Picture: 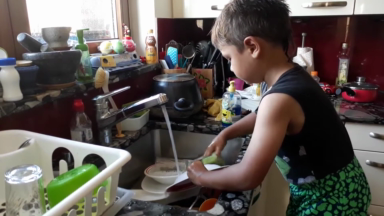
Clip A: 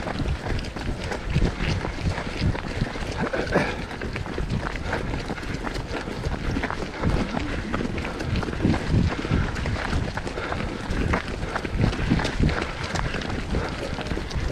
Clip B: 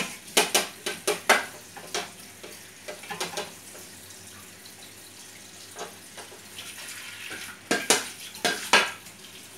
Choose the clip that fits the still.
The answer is B